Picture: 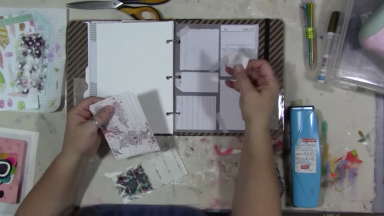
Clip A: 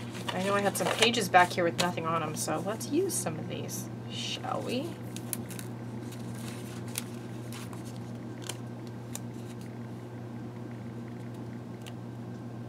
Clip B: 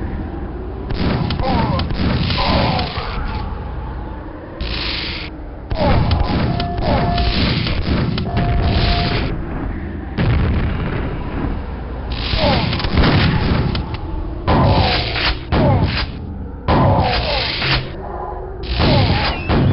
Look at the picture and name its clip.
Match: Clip A